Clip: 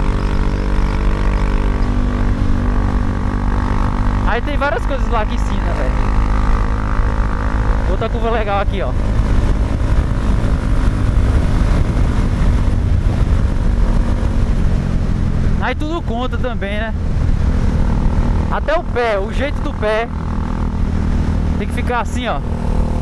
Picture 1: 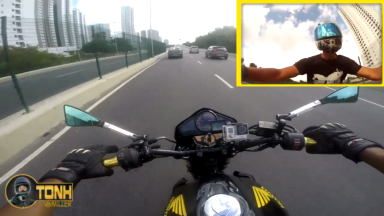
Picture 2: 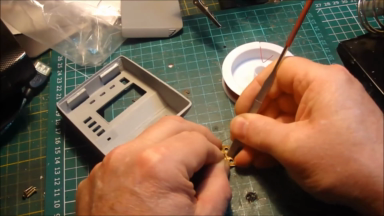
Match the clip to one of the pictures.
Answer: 1